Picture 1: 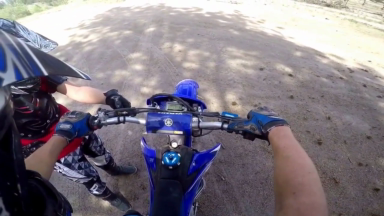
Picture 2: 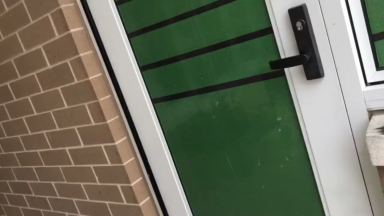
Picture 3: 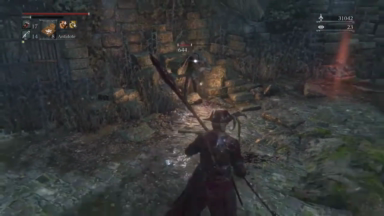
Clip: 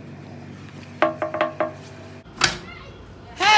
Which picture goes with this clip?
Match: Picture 2